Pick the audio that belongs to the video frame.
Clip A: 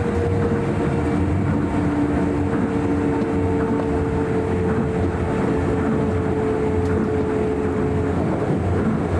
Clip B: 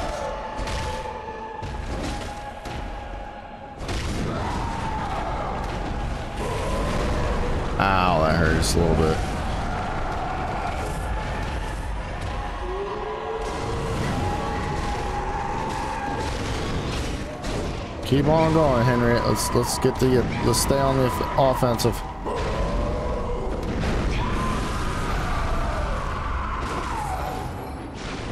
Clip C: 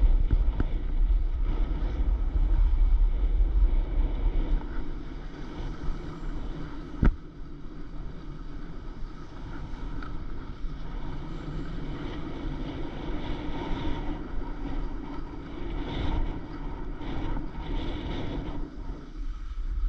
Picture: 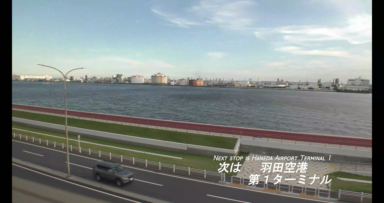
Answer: A